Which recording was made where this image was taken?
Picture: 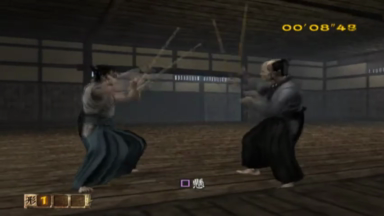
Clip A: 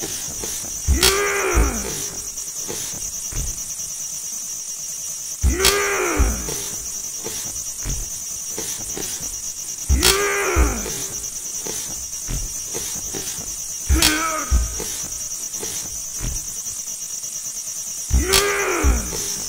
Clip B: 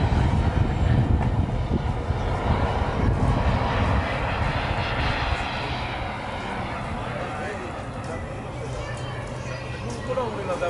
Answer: A